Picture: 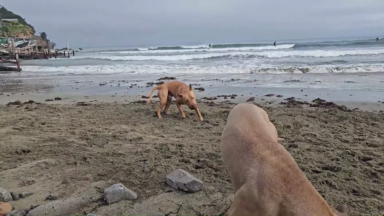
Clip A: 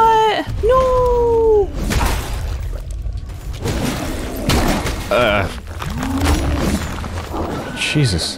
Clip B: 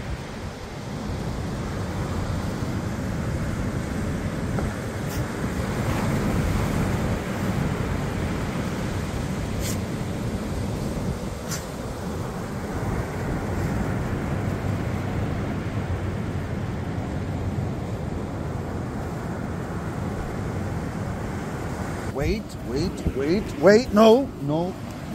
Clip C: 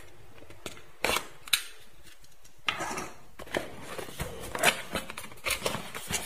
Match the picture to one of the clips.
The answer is B